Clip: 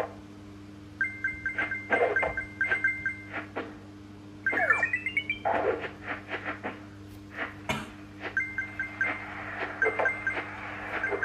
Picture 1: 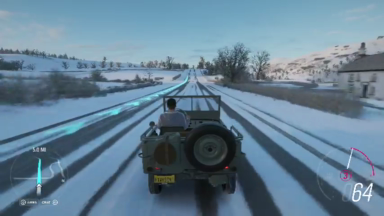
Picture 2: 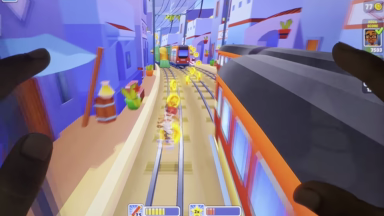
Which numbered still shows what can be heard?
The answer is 2